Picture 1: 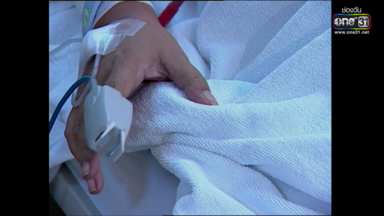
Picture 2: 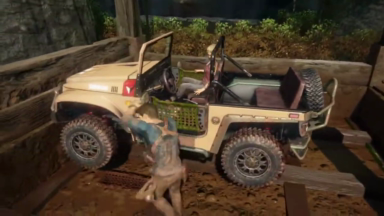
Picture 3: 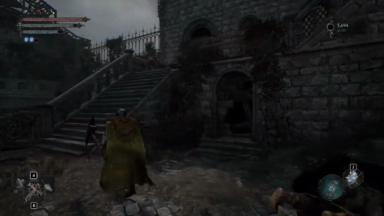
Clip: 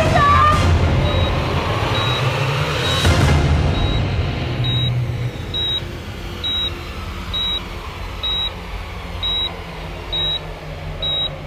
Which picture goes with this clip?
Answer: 1